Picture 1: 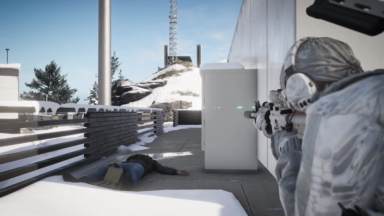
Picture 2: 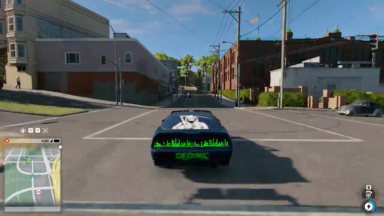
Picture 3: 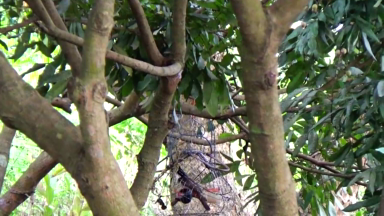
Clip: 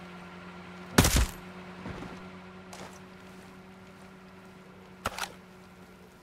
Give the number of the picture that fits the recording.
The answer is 1